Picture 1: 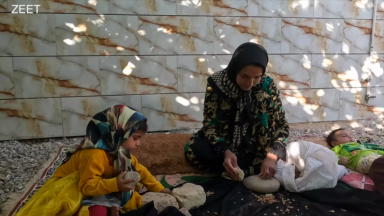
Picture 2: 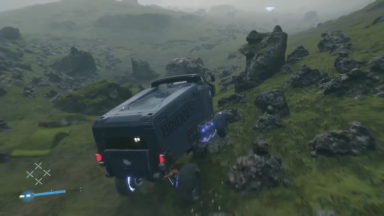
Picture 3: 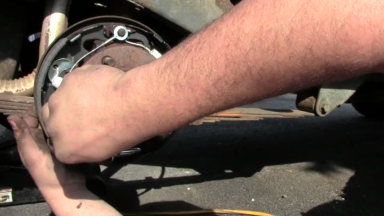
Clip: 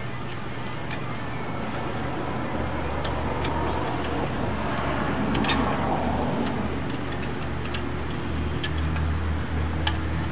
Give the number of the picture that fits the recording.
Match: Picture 3